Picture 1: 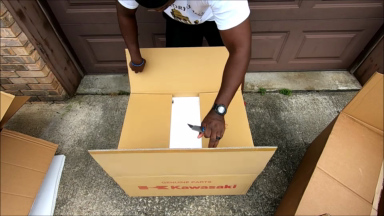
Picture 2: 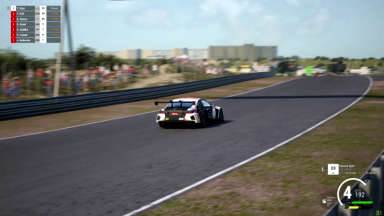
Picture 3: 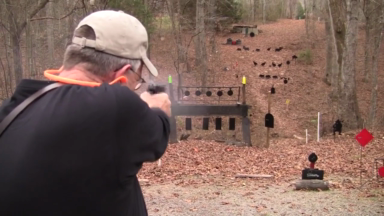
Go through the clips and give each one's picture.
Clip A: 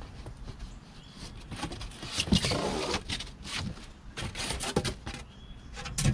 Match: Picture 1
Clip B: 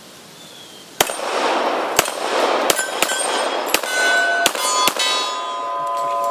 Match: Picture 3